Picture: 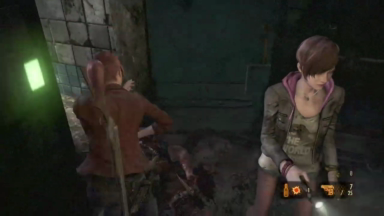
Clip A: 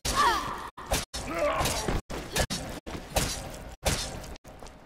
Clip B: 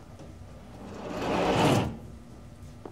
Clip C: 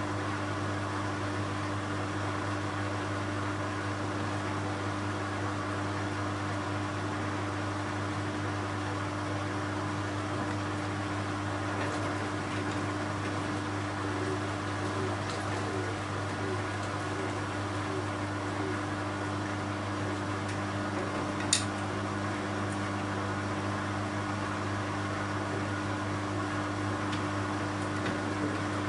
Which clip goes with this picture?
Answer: A